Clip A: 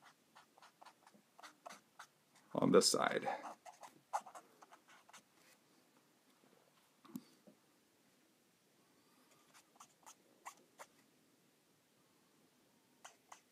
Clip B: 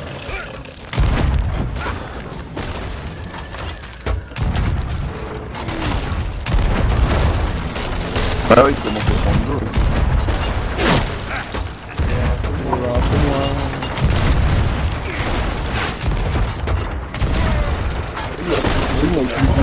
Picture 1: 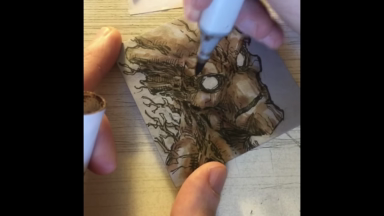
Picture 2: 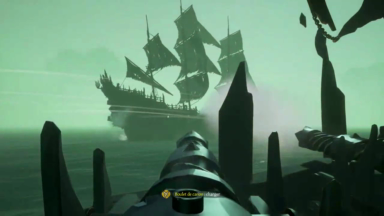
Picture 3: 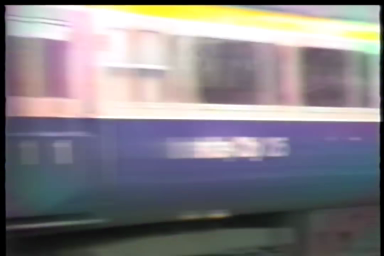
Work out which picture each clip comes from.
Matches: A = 1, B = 2